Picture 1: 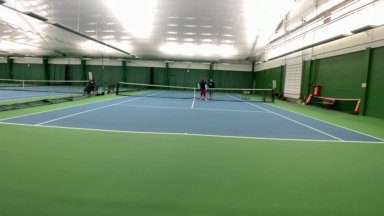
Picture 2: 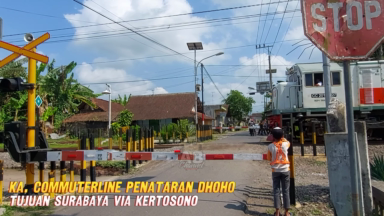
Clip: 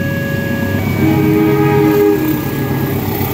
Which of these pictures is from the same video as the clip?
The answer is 2